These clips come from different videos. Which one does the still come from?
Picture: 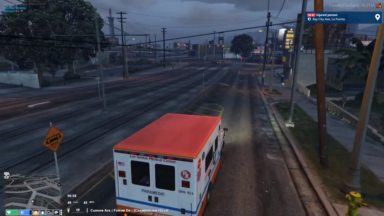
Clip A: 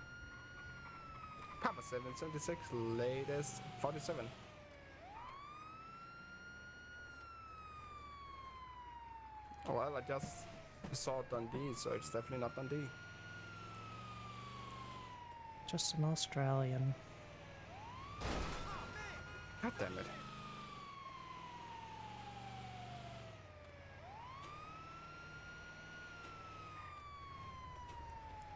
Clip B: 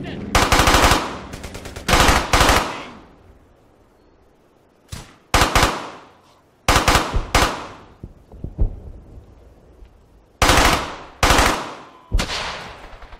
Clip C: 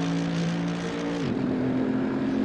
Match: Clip A